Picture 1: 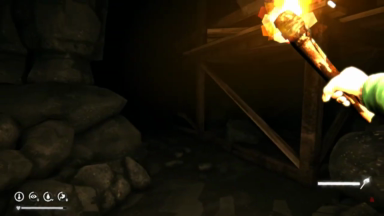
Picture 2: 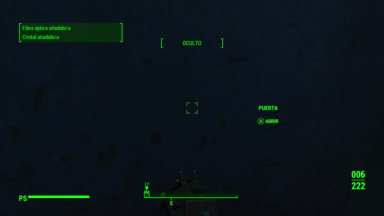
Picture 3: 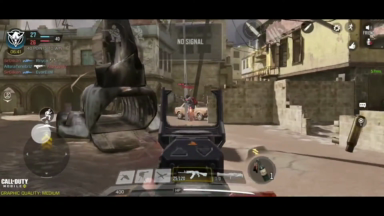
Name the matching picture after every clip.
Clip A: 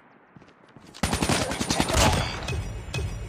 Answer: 3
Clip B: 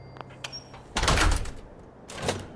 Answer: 2